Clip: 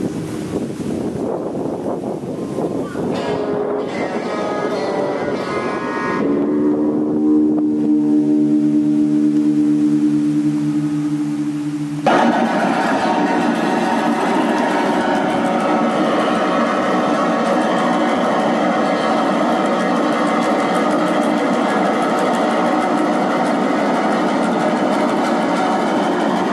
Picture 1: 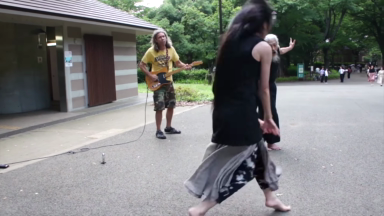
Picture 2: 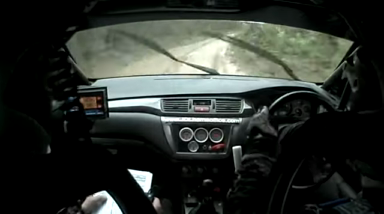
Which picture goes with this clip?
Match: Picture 1